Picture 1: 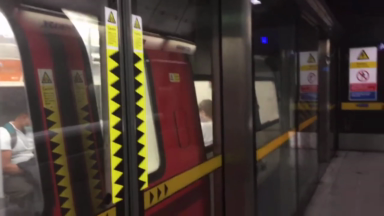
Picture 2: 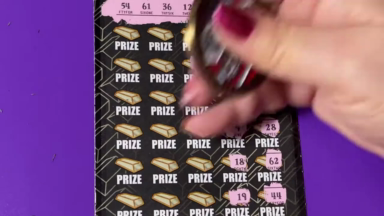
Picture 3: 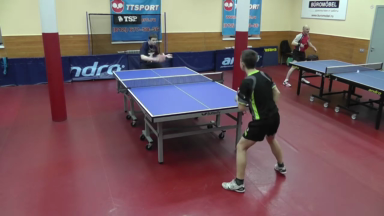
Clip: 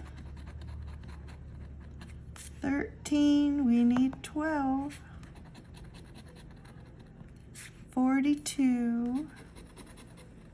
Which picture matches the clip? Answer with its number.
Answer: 2